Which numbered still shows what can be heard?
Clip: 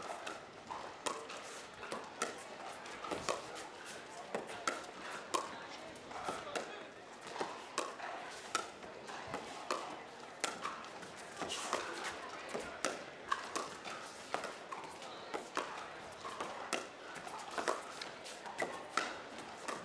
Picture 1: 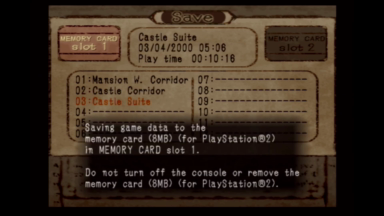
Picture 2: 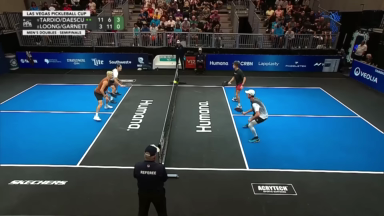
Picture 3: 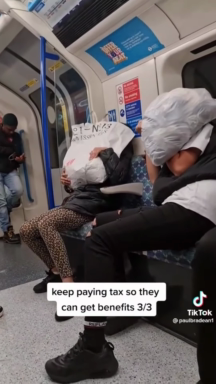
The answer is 2